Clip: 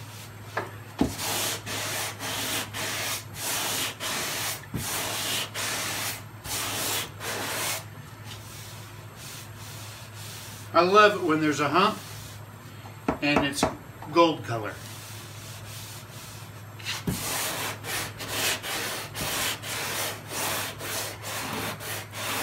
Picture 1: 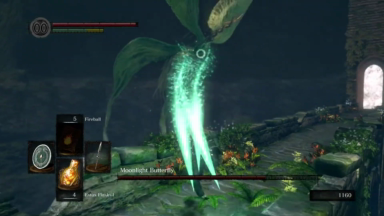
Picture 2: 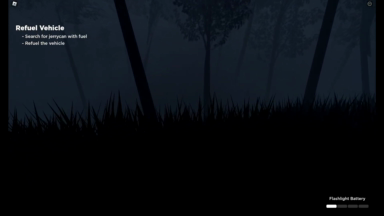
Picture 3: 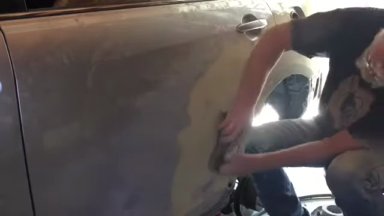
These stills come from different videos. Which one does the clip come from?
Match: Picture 3